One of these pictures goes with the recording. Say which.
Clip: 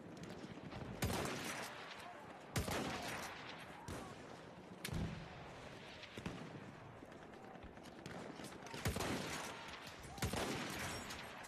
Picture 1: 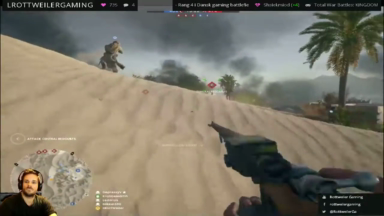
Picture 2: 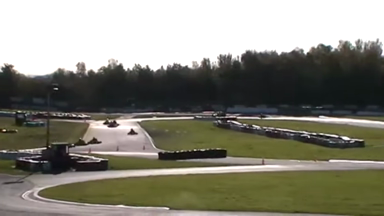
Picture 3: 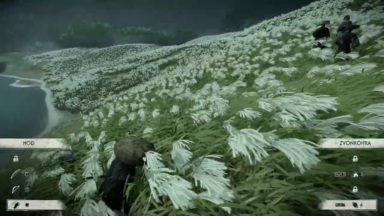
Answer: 1